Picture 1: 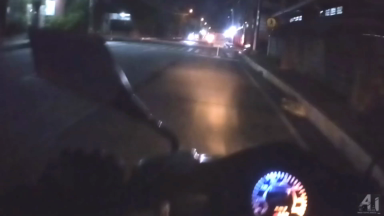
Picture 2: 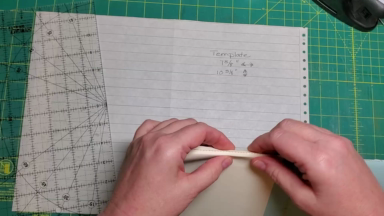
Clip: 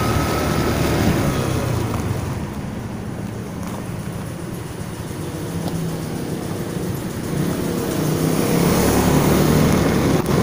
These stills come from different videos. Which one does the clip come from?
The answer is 1